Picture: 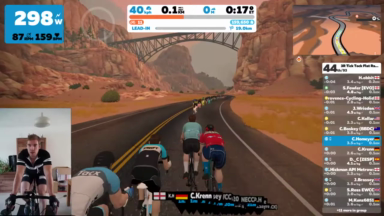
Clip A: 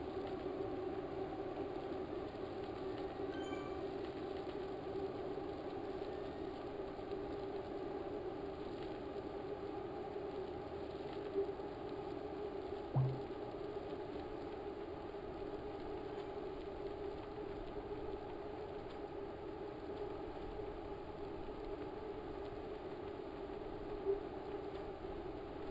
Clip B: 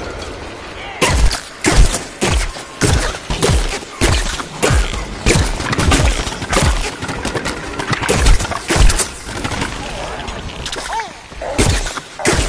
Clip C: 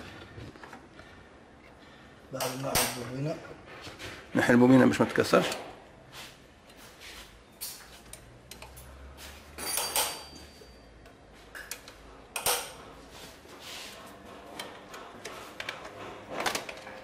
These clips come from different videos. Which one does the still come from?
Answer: A